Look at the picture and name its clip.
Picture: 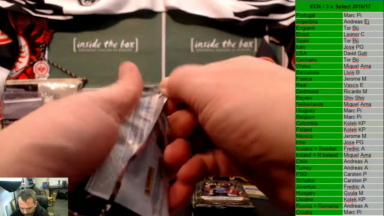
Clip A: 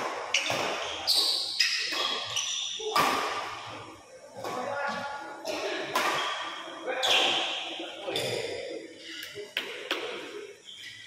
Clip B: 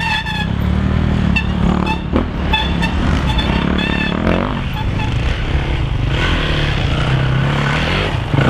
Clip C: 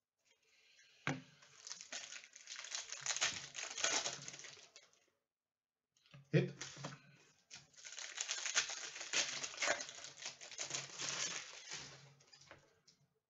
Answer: C